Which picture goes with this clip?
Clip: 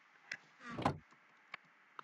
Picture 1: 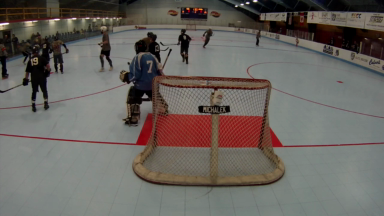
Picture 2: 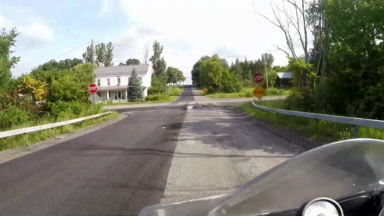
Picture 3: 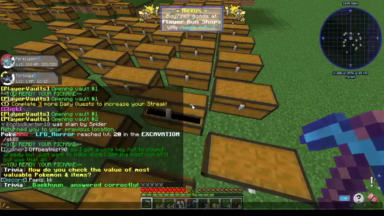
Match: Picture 3